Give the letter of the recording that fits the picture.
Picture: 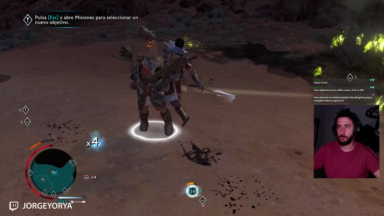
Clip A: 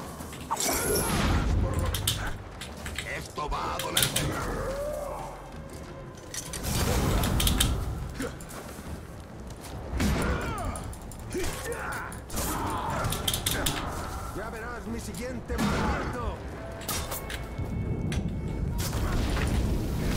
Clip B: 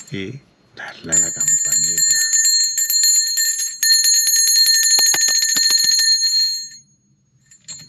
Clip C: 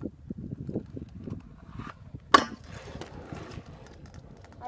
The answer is A